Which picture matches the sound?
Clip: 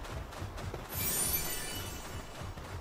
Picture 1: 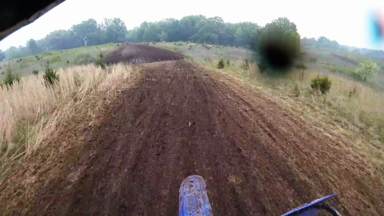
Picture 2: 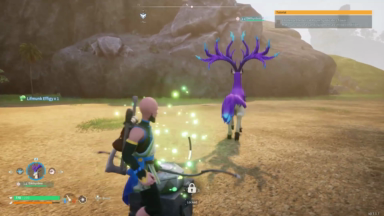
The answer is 2